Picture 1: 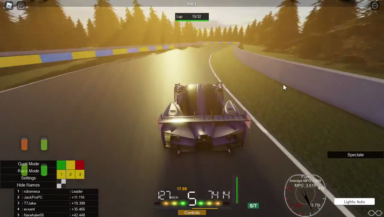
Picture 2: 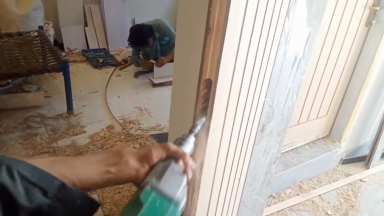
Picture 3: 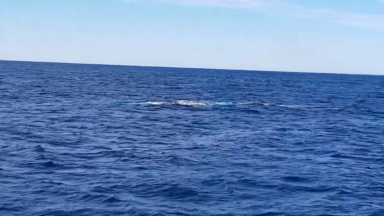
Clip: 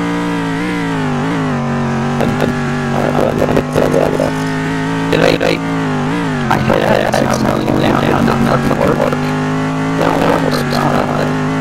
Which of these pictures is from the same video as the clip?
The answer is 1